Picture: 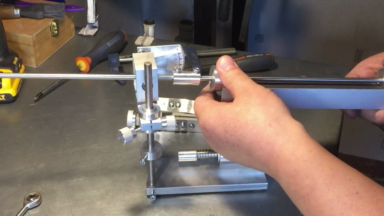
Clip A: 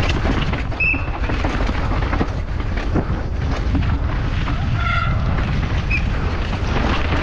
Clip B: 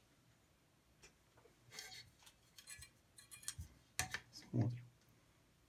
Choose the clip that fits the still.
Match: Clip B